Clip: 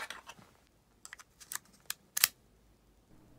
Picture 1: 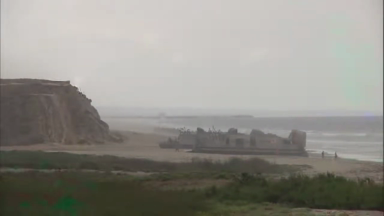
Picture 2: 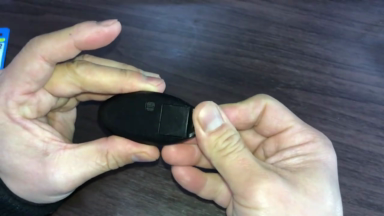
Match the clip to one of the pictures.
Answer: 2